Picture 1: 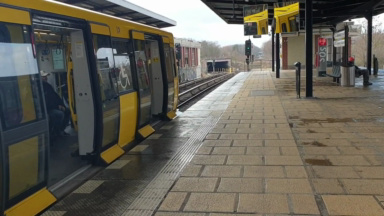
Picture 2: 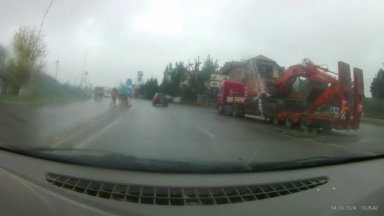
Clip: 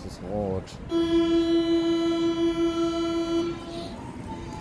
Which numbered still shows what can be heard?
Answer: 1